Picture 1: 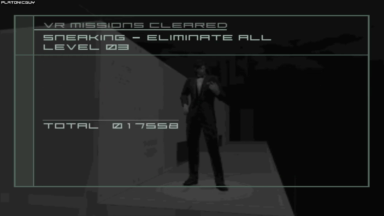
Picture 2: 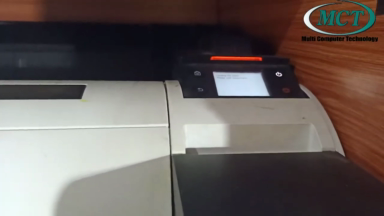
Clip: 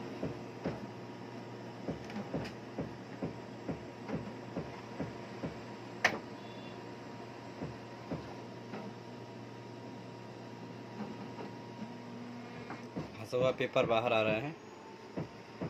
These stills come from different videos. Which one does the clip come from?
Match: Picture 2